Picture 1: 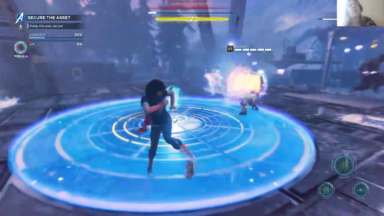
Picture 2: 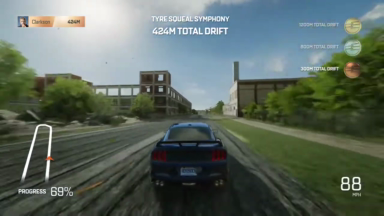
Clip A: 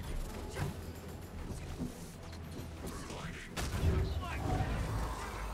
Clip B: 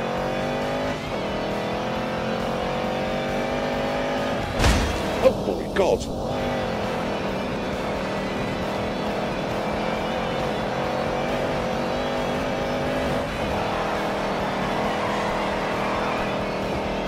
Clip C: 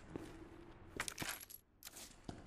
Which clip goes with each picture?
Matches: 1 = A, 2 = B